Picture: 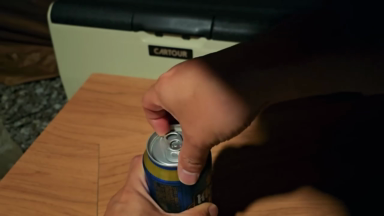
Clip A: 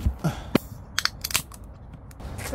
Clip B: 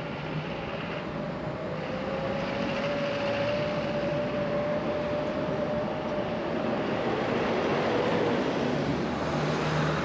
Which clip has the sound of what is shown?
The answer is A